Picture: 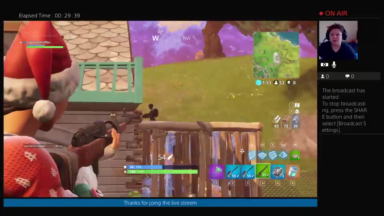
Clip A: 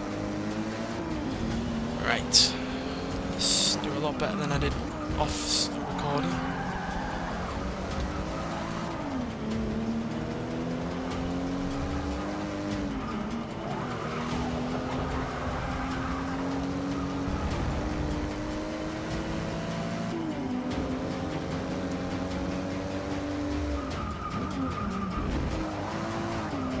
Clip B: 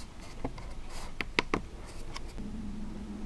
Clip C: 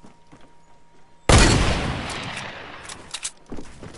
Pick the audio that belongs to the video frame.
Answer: C